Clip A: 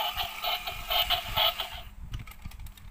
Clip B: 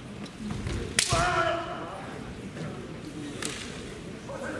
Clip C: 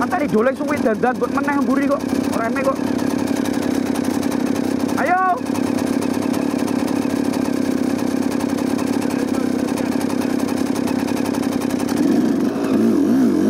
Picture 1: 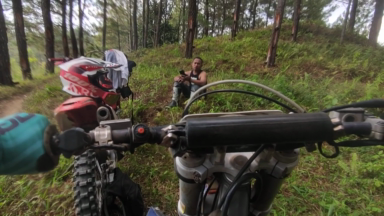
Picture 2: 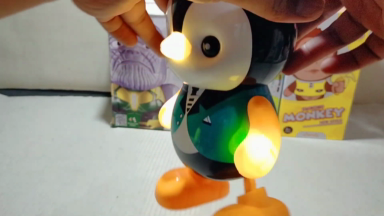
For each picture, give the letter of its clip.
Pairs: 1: C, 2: A